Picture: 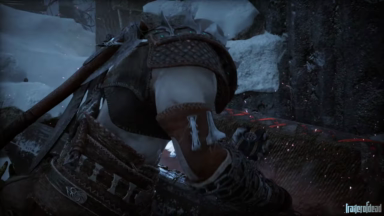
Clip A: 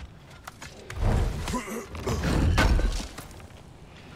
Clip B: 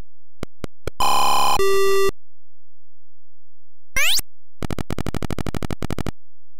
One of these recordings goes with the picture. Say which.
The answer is A